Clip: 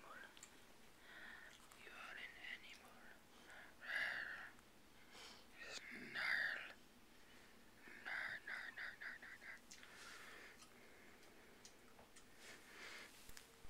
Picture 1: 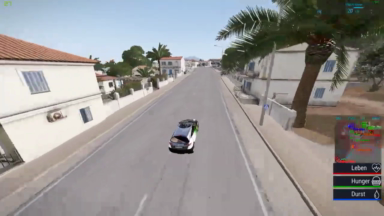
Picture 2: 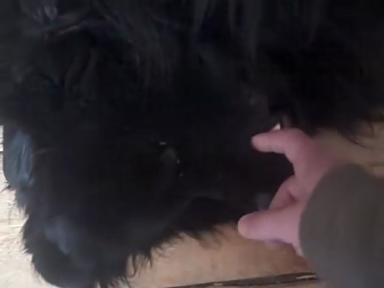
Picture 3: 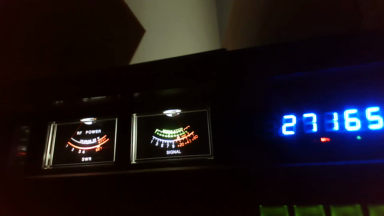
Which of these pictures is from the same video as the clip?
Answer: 2